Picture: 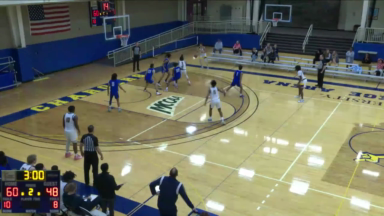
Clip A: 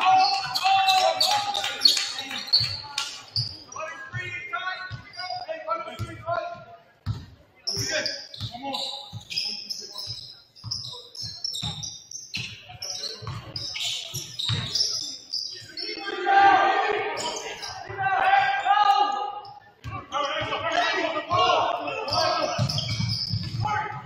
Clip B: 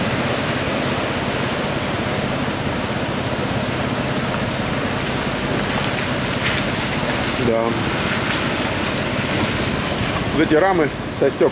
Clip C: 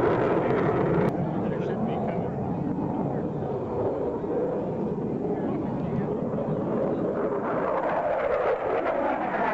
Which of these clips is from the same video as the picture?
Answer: A